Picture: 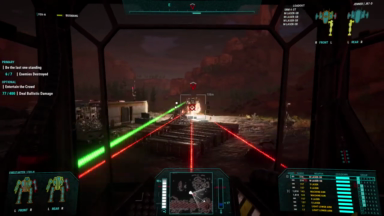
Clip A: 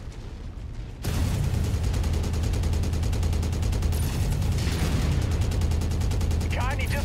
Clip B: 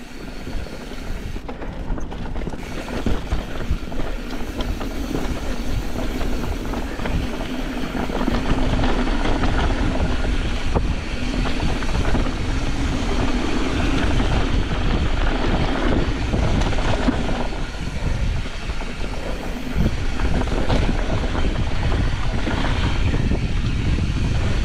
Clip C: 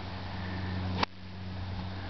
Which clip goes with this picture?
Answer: A